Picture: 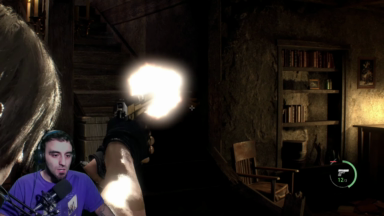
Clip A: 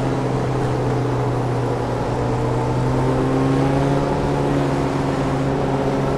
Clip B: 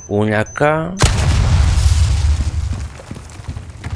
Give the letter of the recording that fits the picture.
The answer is B